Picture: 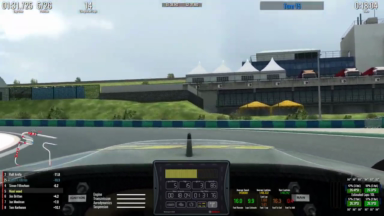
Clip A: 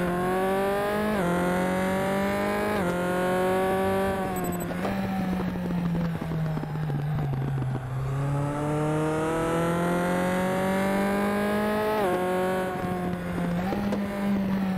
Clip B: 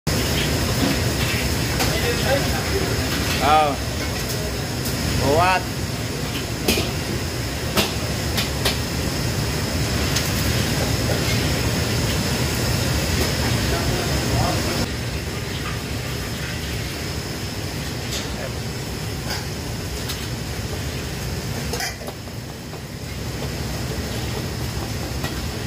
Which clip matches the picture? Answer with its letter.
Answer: A